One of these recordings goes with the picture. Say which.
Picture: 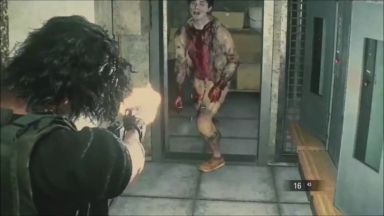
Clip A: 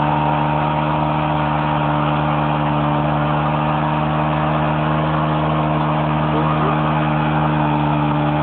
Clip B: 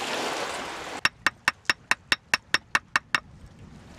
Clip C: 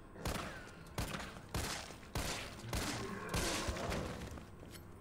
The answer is C